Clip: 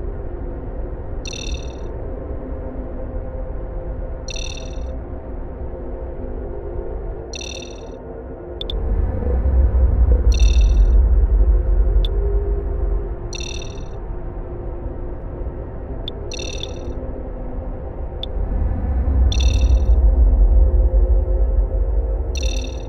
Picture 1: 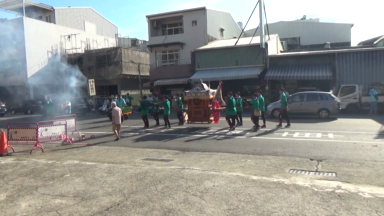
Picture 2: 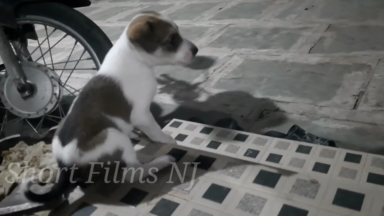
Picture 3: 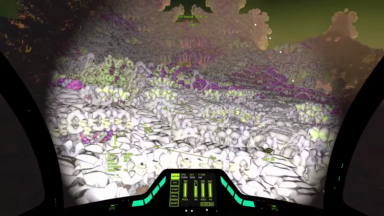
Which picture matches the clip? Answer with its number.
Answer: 3